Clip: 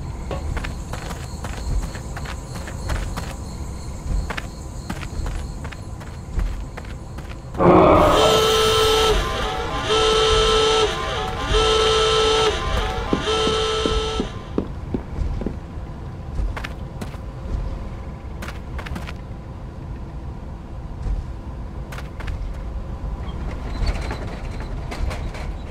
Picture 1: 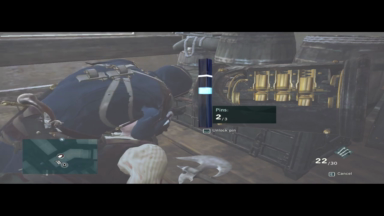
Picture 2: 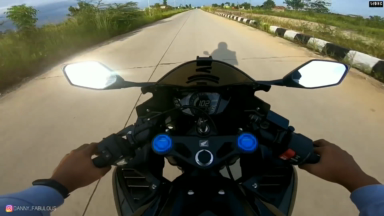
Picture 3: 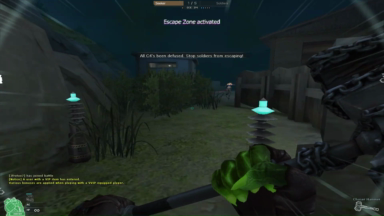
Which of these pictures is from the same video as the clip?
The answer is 3